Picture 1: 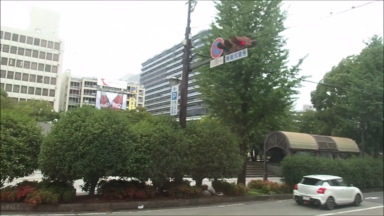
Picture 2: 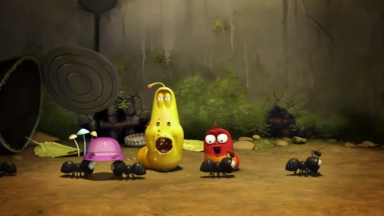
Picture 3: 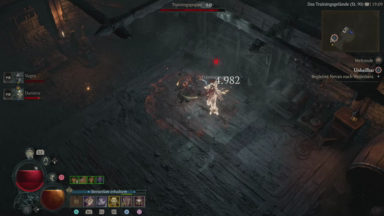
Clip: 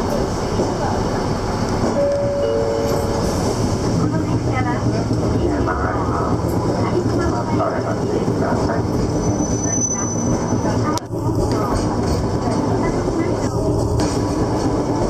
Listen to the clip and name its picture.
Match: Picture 1